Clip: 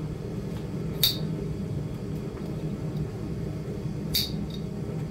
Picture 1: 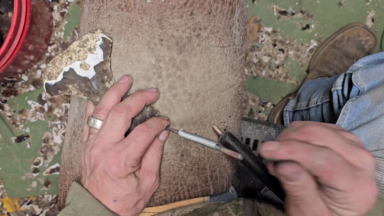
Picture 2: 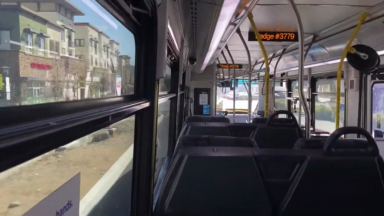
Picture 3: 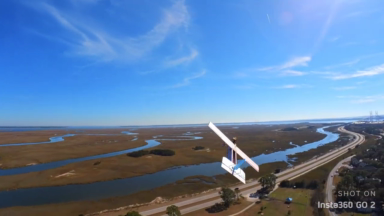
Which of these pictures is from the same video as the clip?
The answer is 1